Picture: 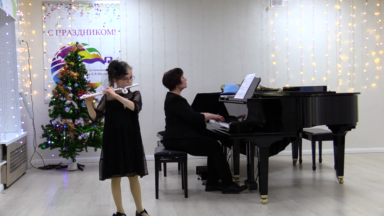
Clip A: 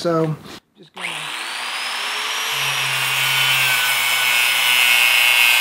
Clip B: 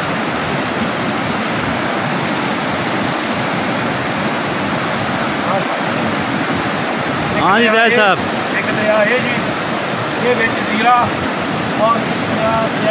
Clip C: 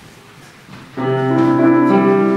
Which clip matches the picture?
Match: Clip C